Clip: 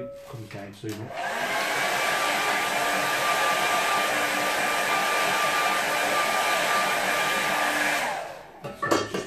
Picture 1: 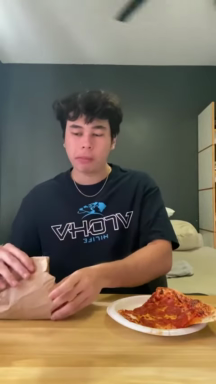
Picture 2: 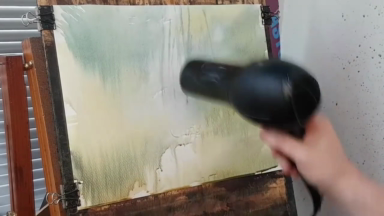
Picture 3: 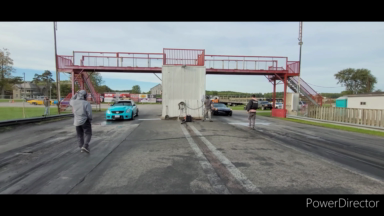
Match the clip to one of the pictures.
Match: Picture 2